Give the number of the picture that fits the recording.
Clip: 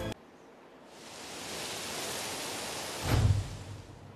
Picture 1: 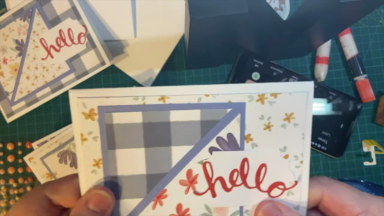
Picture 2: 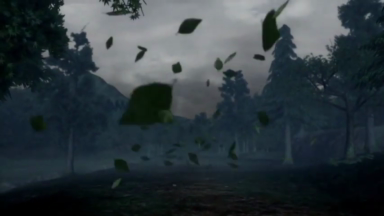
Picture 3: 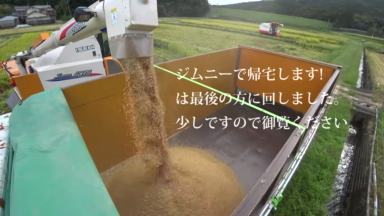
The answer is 2